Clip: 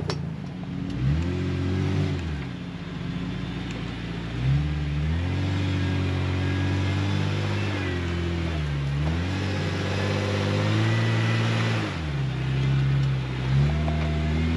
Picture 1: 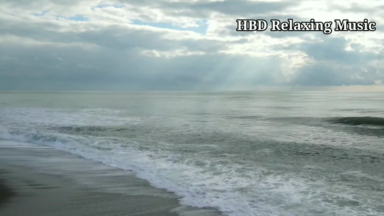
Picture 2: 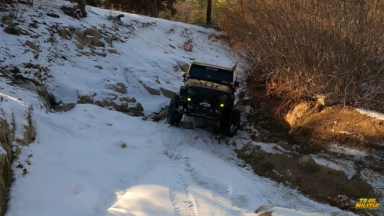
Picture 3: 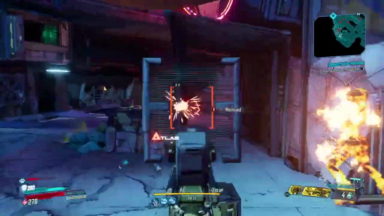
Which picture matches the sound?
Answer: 2